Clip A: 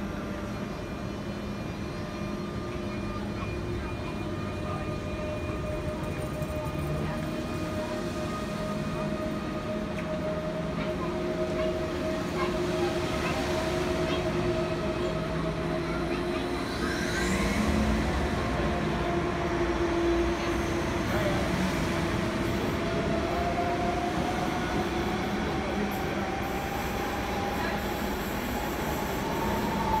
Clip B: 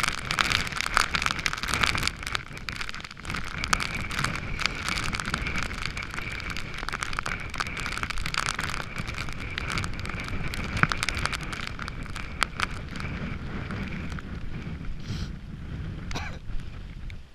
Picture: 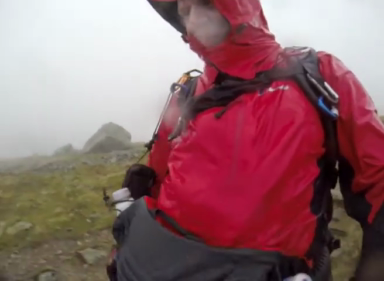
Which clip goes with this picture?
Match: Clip B